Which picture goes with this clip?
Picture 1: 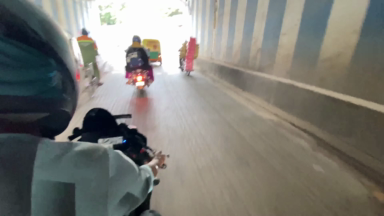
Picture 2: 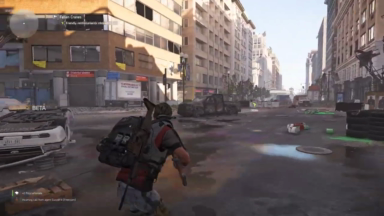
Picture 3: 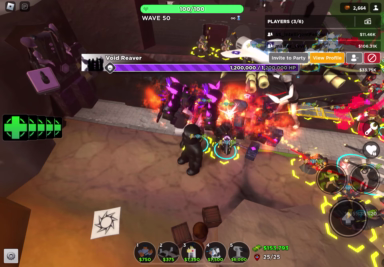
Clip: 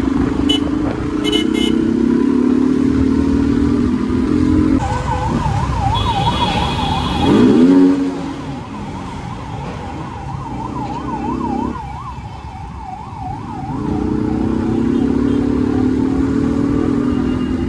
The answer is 1